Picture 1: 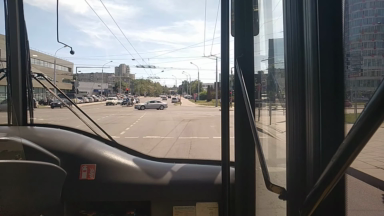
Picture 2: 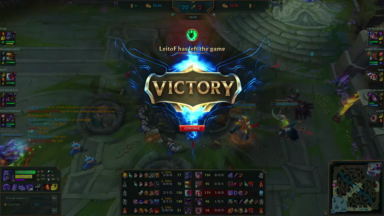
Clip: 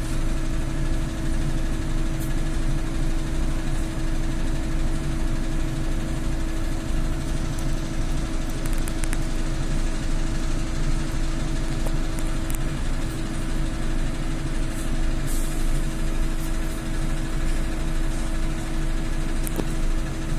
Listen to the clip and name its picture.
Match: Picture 1